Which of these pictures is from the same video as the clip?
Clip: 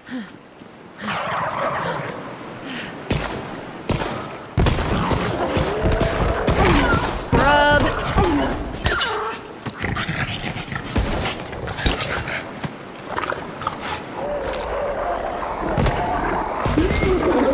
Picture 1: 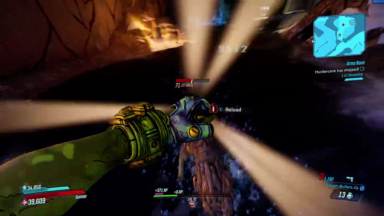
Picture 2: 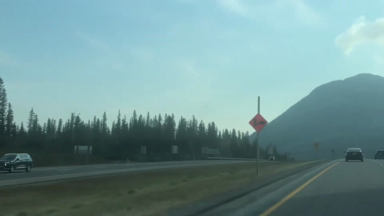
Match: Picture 1